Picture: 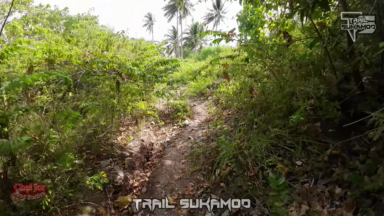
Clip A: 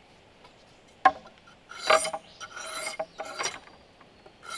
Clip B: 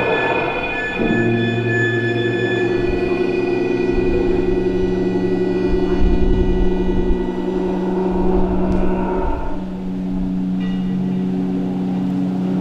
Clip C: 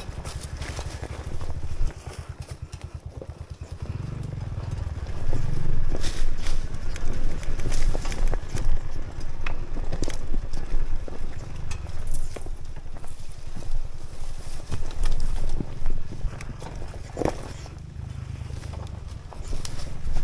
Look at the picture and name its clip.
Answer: C